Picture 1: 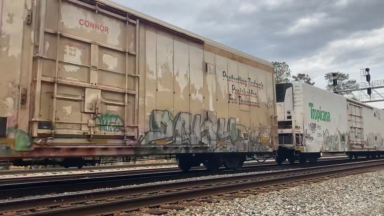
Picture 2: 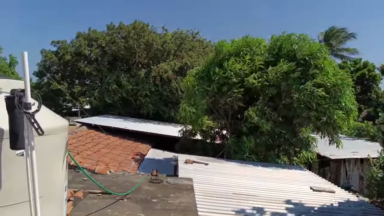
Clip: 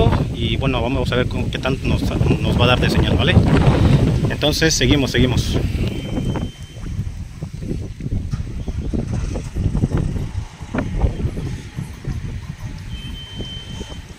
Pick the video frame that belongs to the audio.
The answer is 2